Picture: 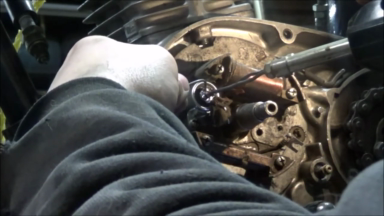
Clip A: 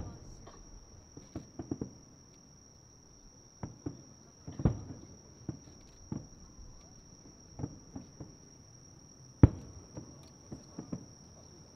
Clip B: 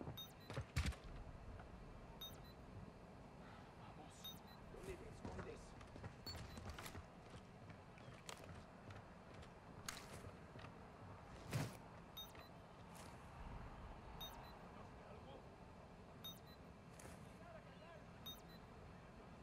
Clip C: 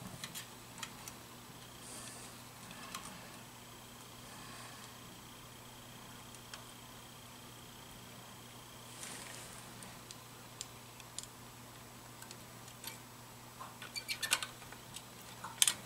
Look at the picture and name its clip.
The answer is C